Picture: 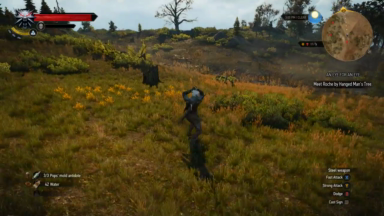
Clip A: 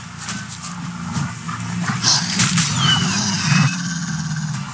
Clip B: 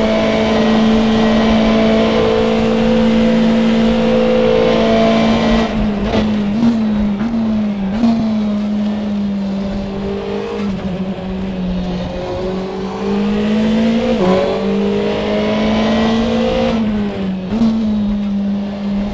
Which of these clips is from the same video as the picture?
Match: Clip A